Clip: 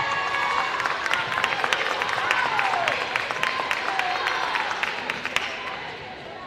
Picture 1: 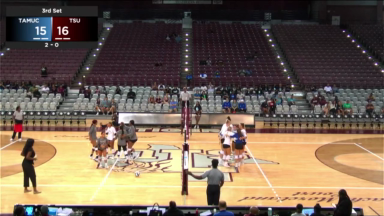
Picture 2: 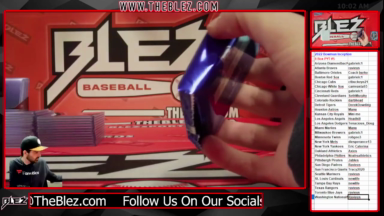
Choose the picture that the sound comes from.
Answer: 1